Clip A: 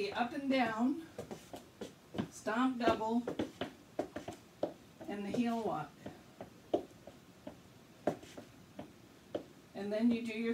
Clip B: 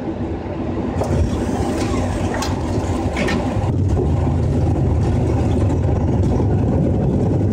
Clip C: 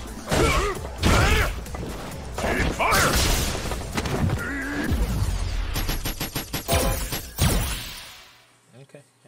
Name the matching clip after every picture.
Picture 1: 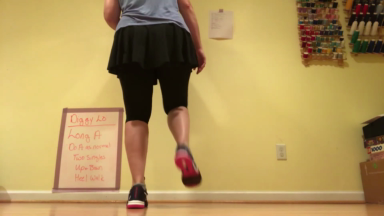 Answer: A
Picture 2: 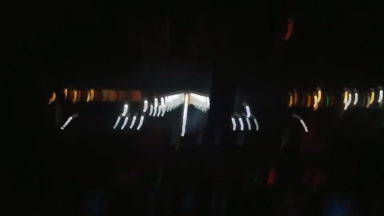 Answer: B